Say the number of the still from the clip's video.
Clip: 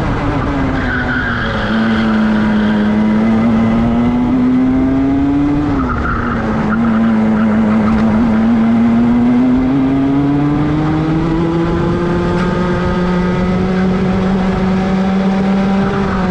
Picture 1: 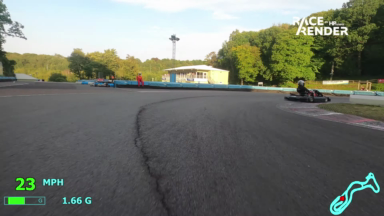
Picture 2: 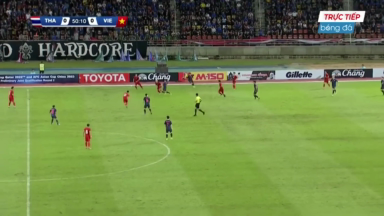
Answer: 1